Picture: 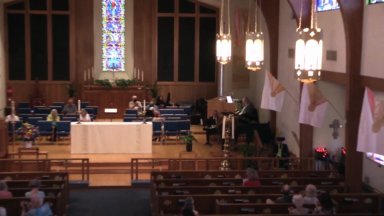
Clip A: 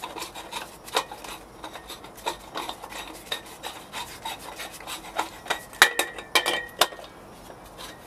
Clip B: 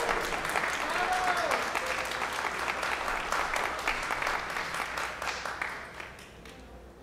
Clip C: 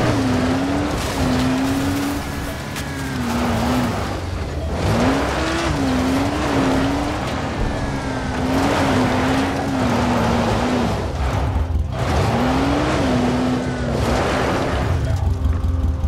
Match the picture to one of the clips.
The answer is B